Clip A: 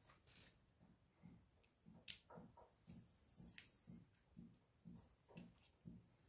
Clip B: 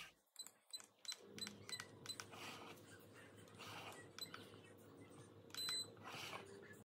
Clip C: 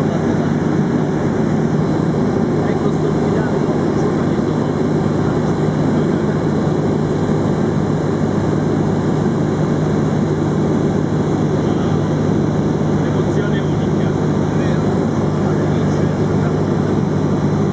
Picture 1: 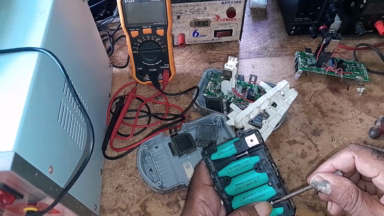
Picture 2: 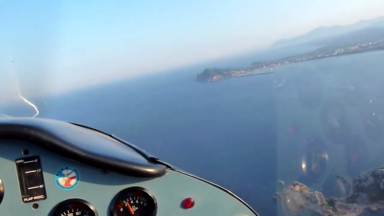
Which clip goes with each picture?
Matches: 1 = A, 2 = C